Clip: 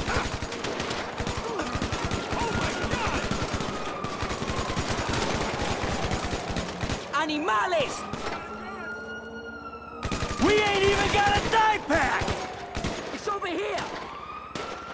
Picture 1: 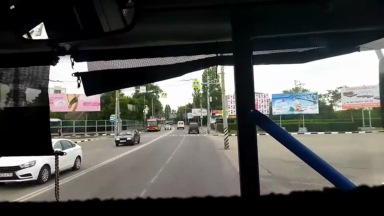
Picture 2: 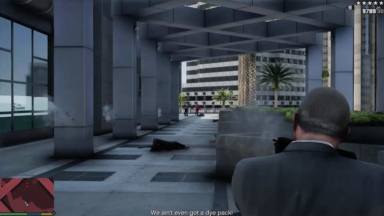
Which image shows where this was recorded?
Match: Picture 2